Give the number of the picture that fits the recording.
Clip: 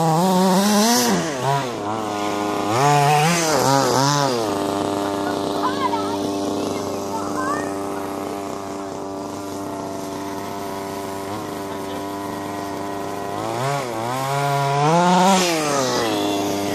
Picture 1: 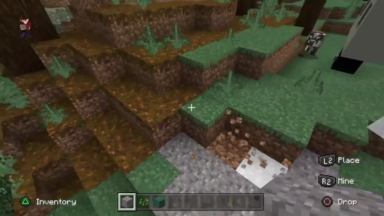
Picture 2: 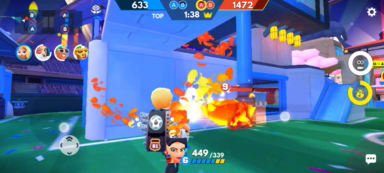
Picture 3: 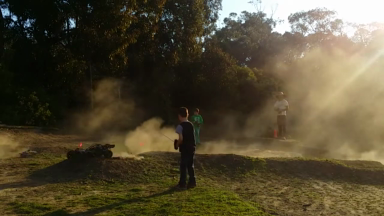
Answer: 3